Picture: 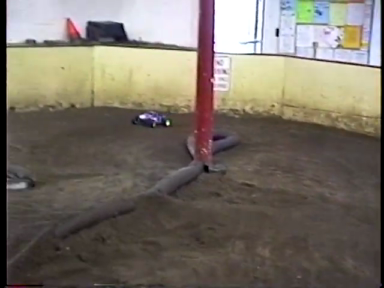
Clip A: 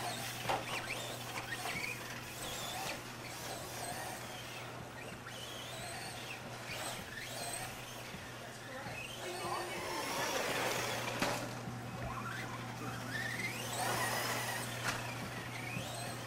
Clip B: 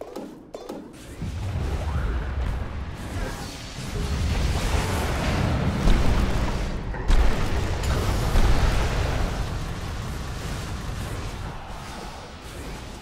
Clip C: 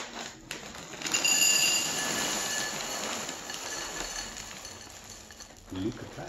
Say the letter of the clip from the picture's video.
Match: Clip A